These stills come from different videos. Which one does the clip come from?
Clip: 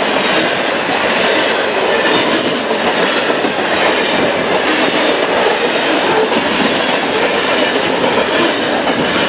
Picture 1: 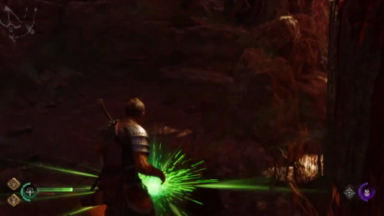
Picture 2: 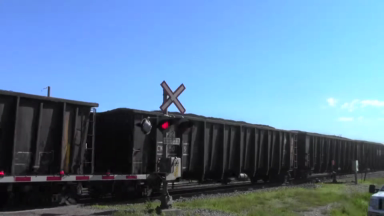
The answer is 2